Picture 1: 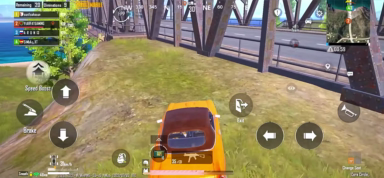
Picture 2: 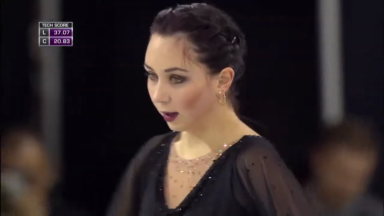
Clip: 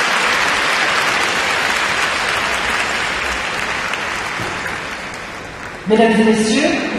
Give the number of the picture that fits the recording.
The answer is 2